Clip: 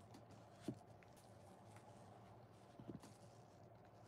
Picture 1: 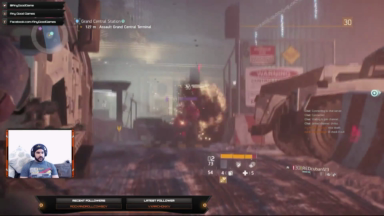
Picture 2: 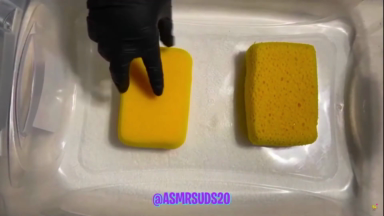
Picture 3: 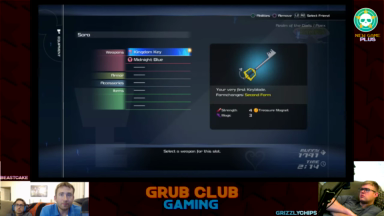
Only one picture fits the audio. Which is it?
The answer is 2